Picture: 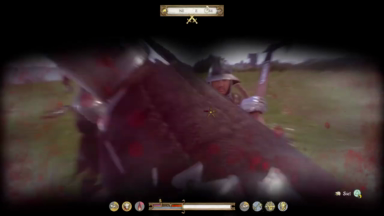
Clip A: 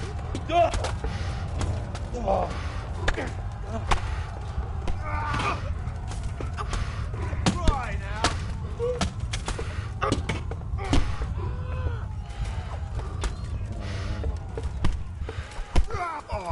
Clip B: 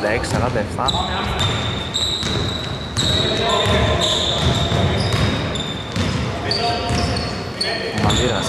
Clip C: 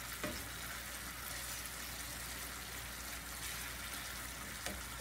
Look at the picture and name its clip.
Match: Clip A